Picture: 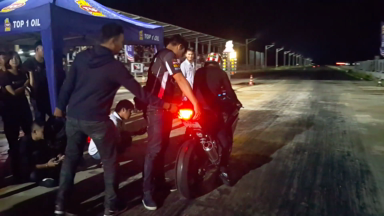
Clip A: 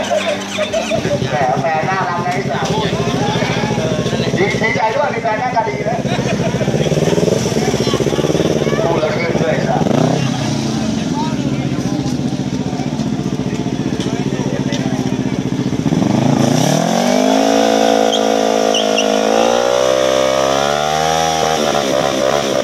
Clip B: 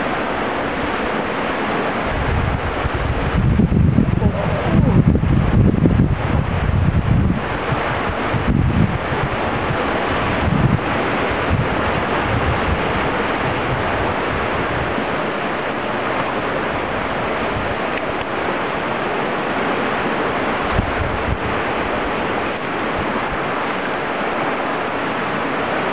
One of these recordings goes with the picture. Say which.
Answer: A